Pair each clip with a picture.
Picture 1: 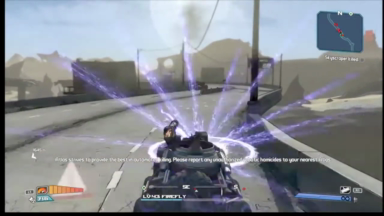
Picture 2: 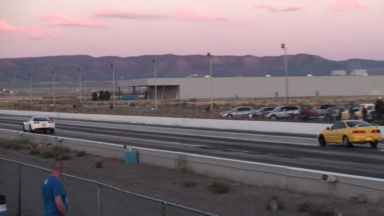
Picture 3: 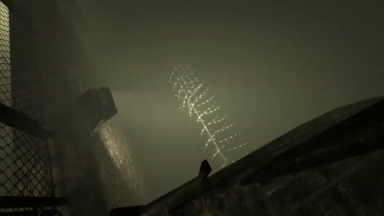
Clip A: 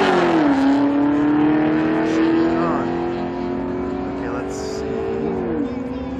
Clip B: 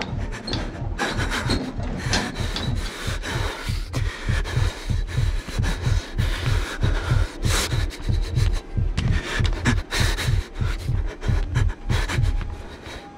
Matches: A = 2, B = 3